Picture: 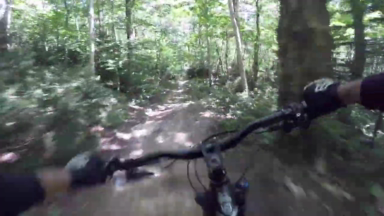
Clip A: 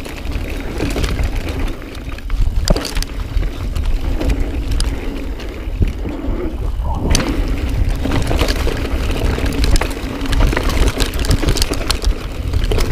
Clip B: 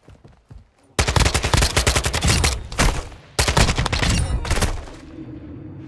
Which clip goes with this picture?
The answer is A